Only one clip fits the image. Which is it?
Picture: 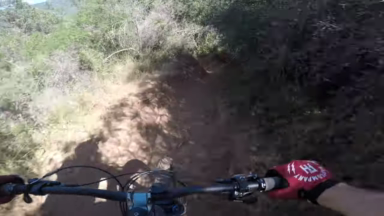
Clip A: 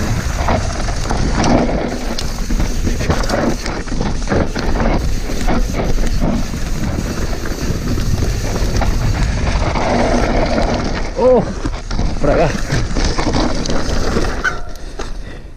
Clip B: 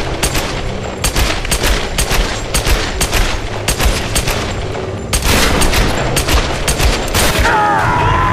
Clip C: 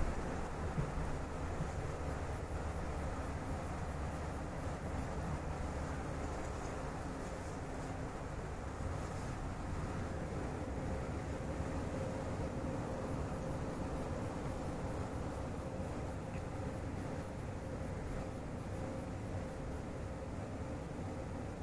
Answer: A